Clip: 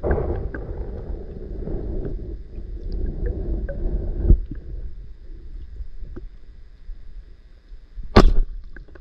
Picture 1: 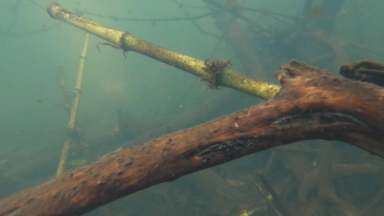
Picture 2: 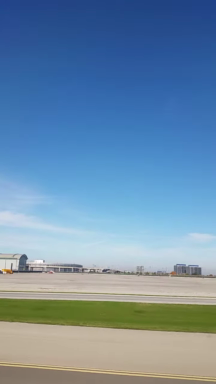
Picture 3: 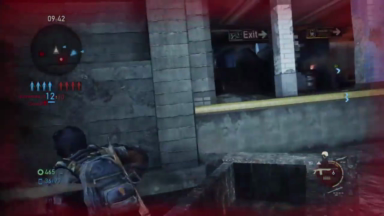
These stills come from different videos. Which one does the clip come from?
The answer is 1